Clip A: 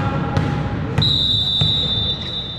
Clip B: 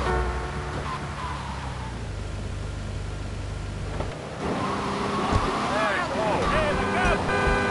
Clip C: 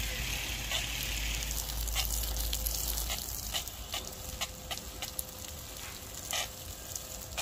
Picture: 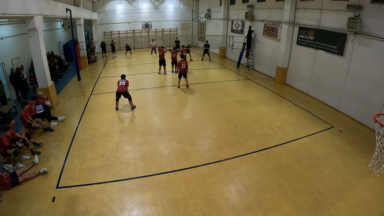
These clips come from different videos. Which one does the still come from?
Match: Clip A